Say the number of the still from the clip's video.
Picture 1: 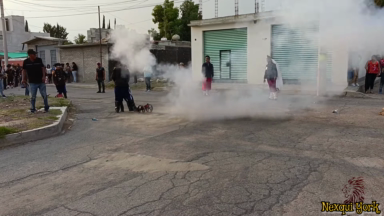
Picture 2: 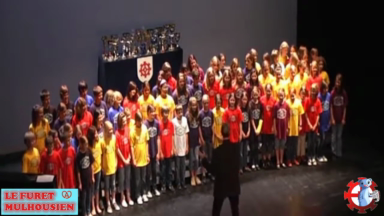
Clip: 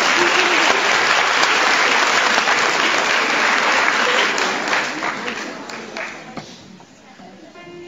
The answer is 2